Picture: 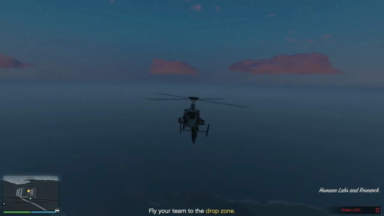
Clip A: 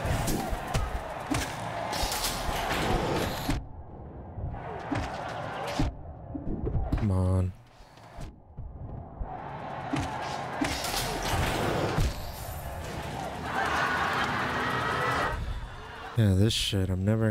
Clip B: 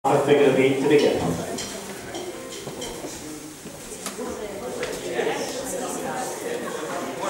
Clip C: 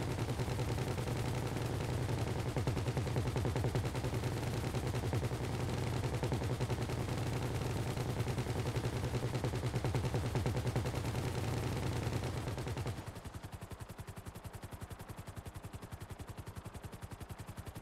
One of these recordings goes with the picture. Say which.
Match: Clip C